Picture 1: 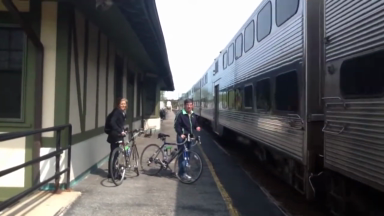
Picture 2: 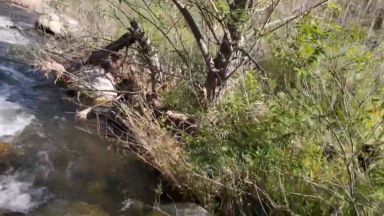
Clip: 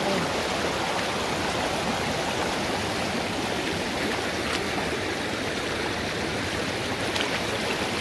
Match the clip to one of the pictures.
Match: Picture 2